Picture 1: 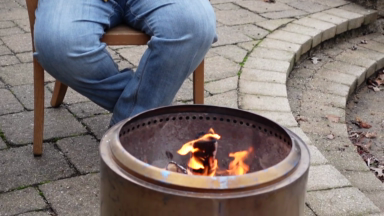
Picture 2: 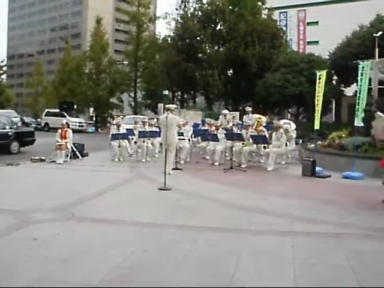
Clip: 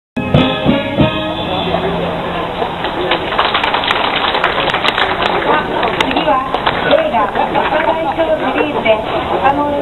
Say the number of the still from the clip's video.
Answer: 2